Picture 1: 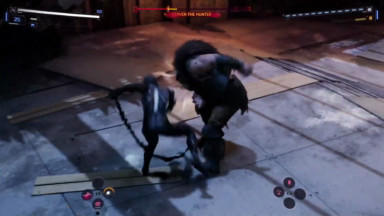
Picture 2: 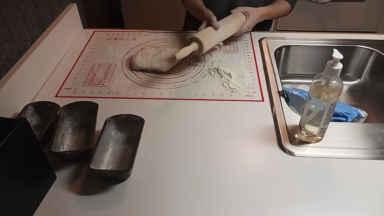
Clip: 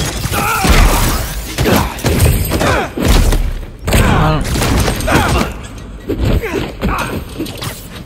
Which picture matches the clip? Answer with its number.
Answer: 1